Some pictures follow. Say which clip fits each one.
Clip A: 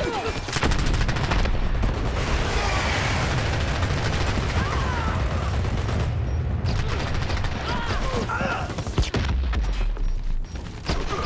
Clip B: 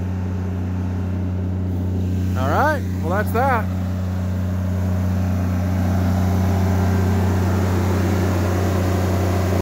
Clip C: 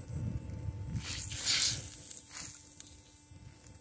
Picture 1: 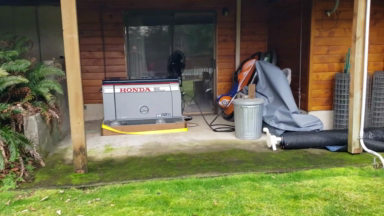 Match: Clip B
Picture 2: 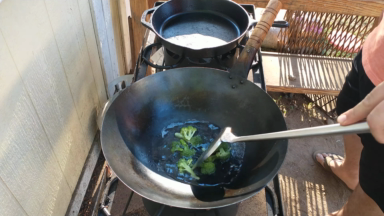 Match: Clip C